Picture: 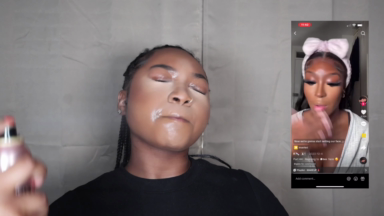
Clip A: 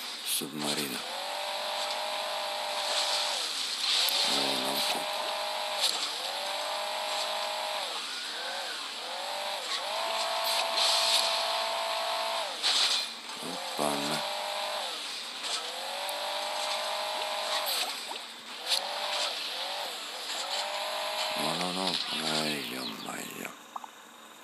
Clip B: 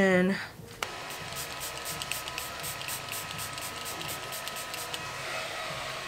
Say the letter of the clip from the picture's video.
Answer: B